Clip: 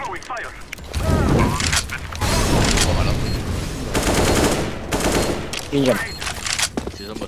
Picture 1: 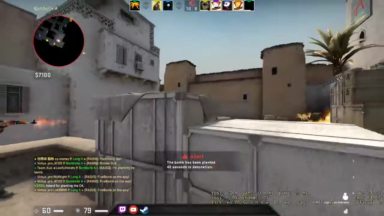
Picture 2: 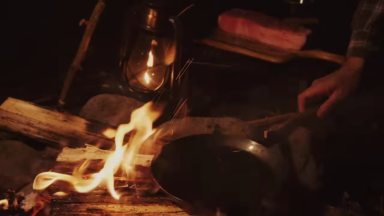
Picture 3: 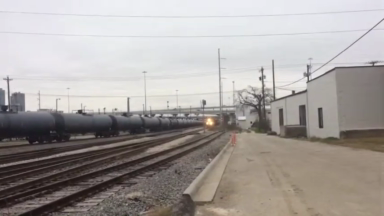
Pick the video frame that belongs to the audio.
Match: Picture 1